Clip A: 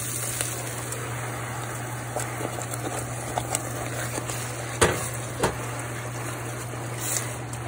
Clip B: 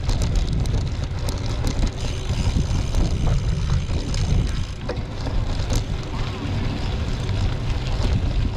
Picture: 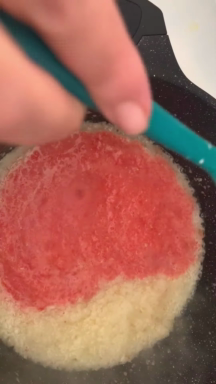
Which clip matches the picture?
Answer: A